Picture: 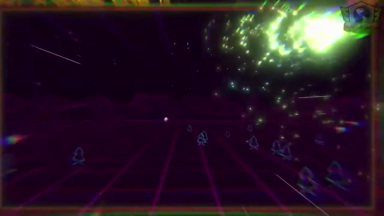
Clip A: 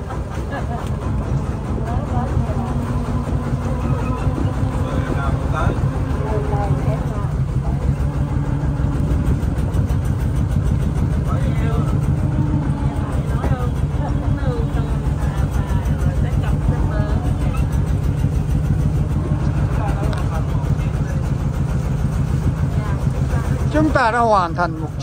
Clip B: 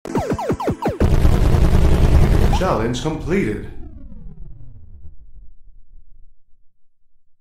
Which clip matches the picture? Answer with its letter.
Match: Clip B